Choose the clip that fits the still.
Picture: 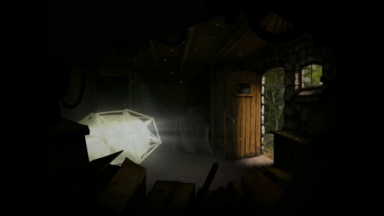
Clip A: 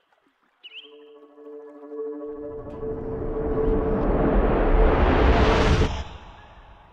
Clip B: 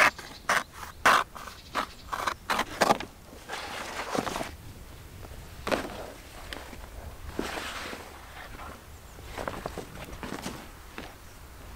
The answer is A